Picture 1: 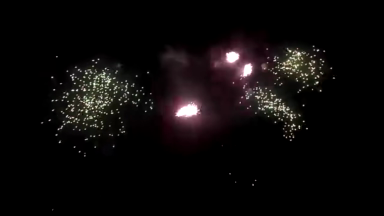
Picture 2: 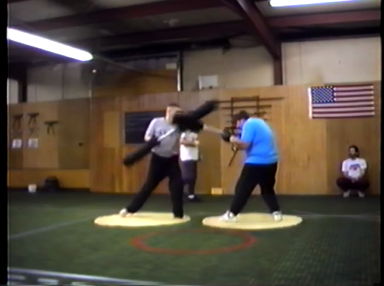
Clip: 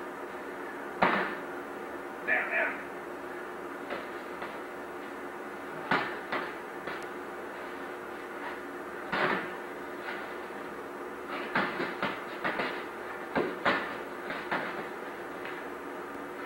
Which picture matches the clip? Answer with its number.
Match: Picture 2